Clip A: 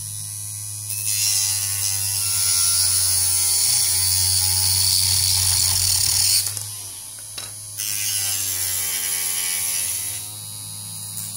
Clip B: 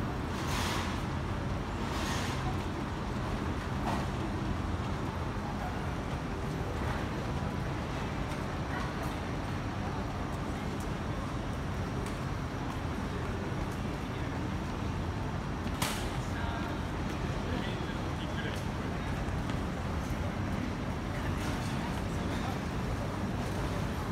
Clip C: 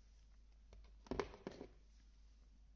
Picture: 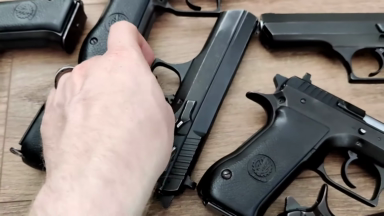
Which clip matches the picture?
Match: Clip C